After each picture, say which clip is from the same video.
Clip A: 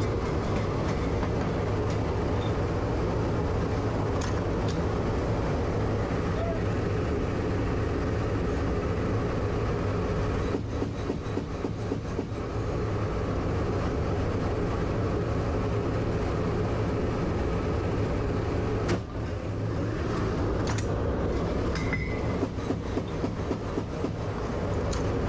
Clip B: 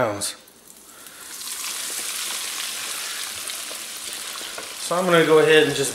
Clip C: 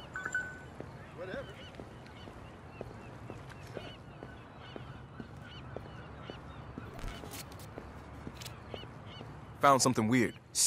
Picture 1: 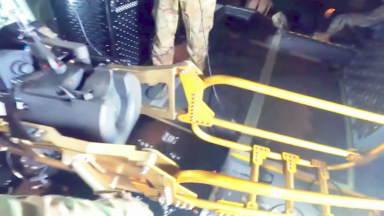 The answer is A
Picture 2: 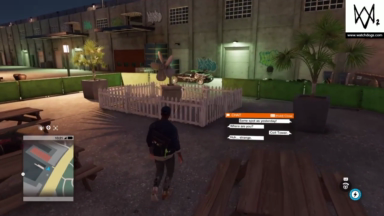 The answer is C